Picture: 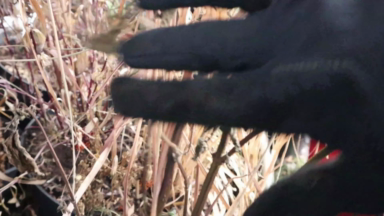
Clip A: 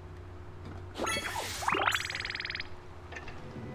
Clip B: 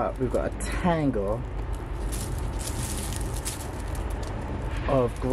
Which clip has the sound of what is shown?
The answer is B